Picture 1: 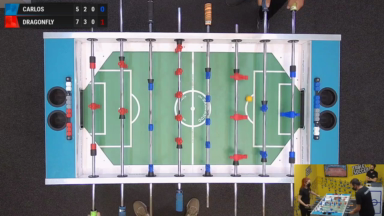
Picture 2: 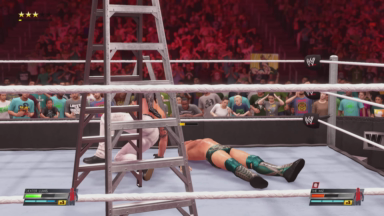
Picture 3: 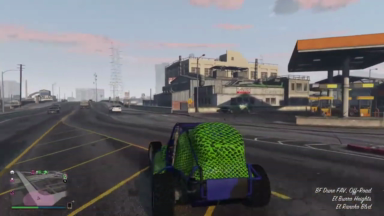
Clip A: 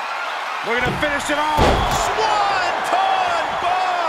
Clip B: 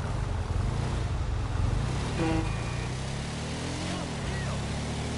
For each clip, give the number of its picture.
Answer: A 2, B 3